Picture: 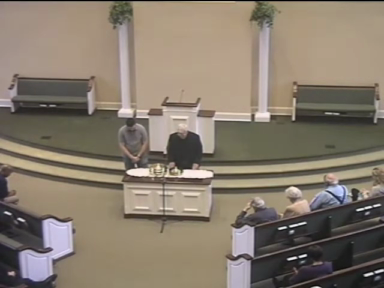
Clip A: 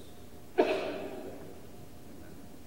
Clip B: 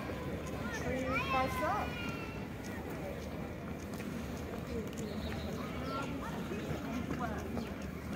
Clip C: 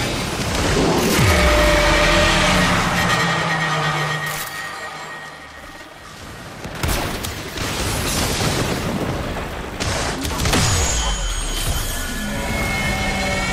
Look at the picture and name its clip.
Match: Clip A